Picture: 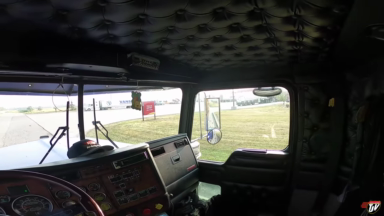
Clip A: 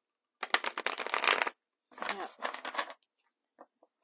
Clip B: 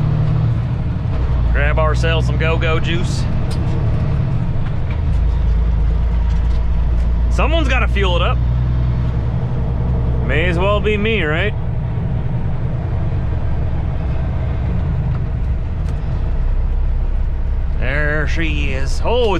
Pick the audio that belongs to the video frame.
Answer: B